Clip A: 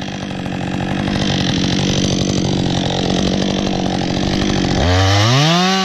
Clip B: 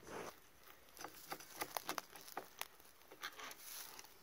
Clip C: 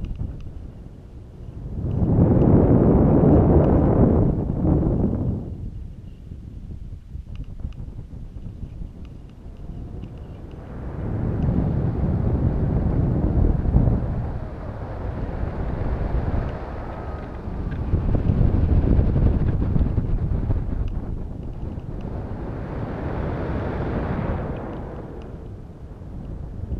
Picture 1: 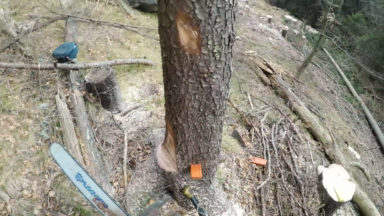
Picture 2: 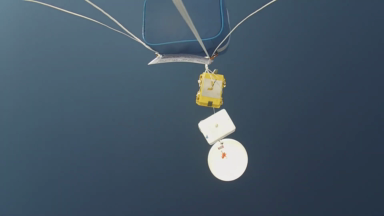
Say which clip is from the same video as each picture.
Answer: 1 A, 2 C